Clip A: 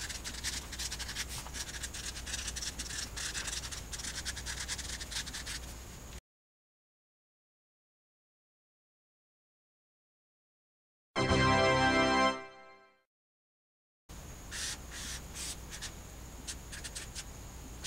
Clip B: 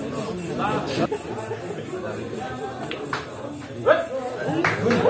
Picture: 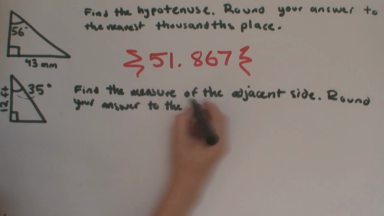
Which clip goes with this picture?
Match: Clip A